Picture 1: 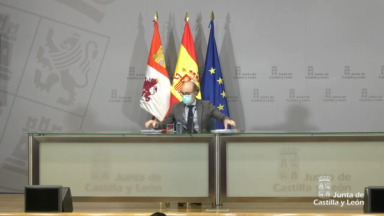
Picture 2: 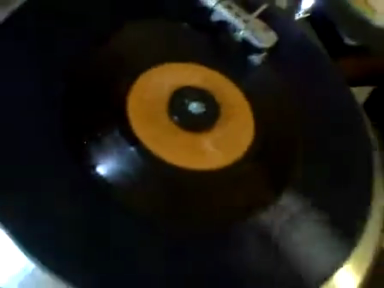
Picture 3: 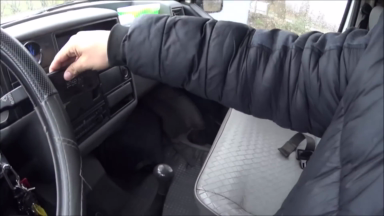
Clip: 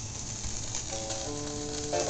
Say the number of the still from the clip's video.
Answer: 2